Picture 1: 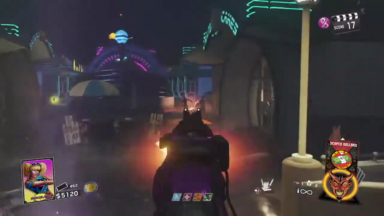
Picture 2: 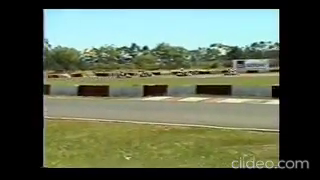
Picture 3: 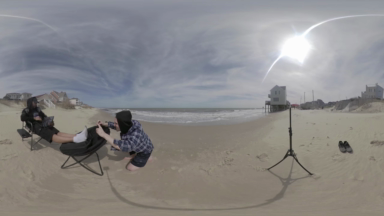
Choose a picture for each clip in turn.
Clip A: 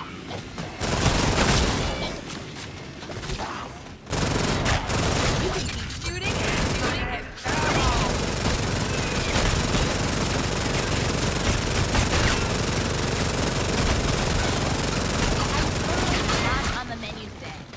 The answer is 1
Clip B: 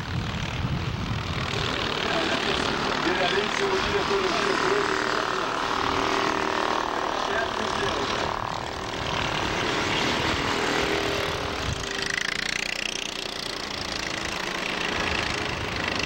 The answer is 2